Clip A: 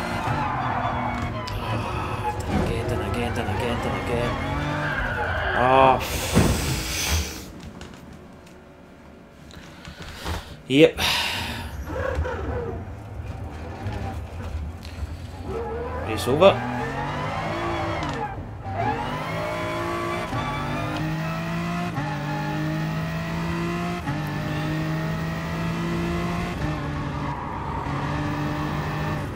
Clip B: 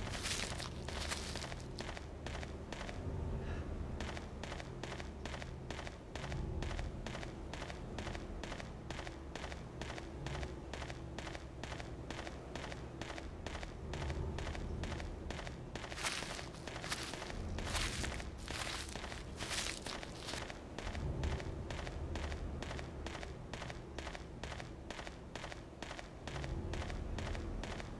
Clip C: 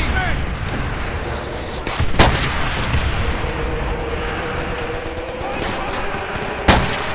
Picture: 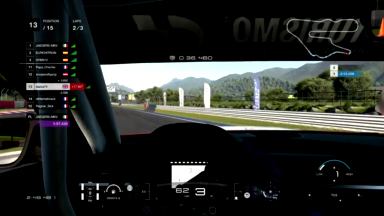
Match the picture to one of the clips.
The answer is A